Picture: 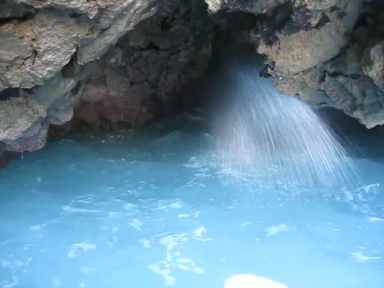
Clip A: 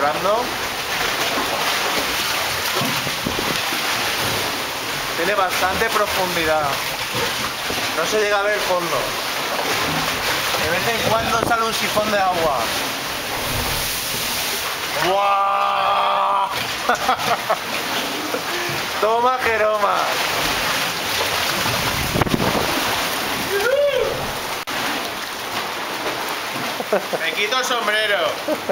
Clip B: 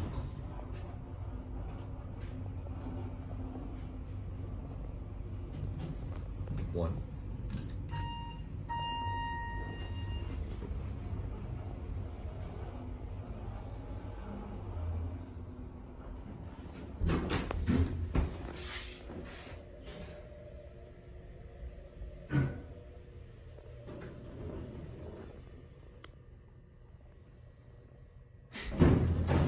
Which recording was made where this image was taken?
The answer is A